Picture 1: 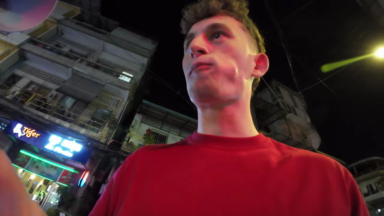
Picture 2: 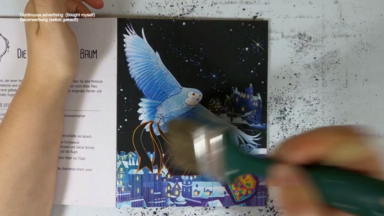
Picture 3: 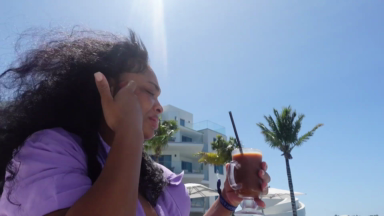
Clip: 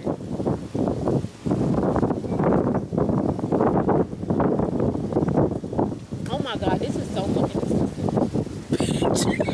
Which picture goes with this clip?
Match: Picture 3